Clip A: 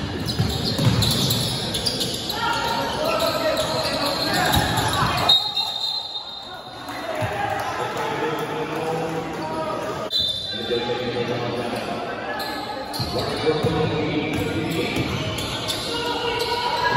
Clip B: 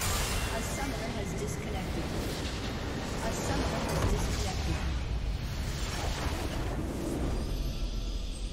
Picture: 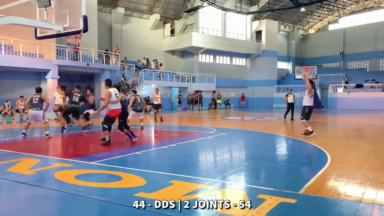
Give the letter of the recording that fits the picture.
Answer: A